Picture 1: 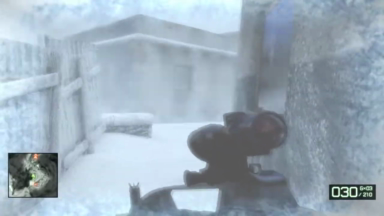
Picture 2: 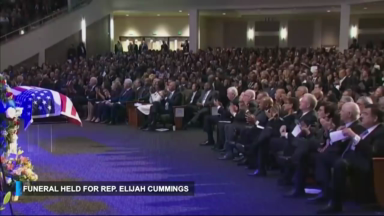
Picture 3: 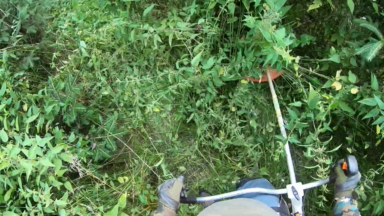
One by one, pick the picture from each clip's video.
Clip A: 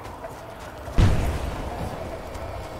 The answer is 1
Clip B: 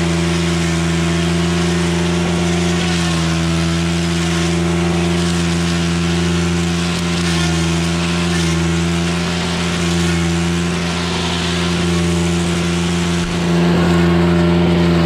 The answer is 3